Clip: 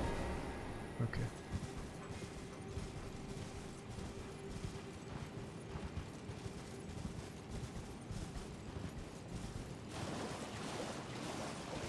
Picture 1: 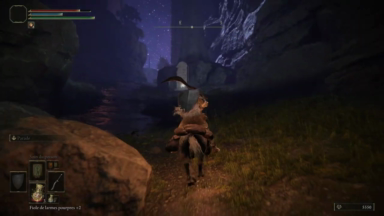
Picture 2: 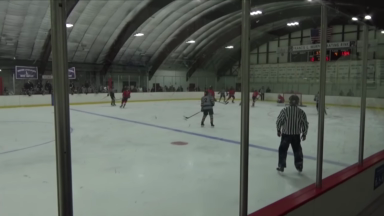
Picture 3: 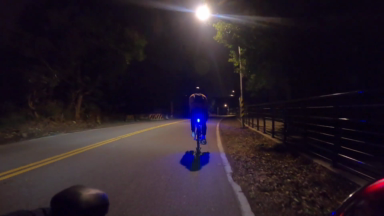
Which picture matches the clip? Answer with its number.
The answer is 1